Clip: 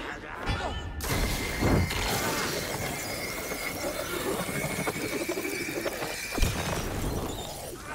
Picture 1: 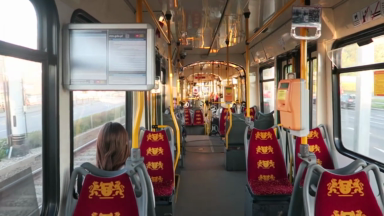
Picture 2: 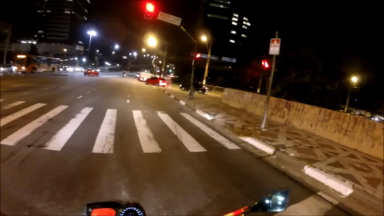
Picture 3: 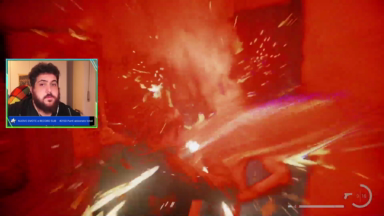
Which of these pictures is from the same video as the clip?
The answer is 3